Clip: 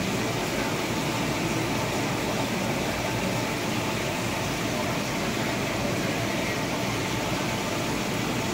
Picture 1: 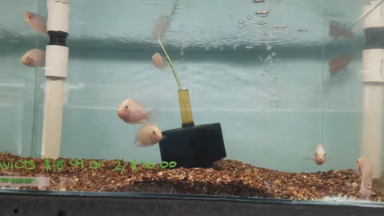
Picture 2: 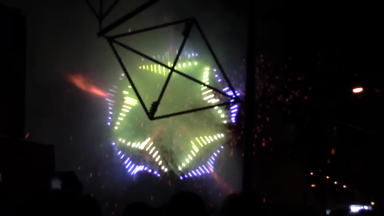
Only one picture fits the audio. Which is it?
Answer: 1